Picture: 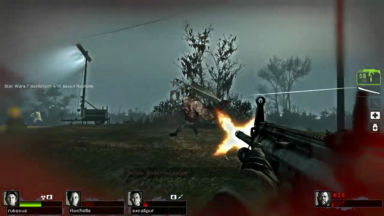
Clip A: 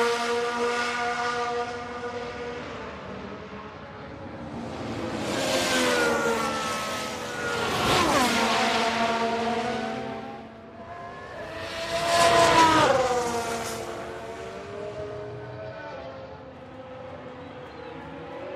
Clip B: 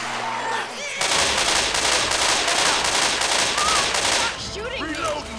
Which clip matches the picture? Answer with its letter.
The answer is B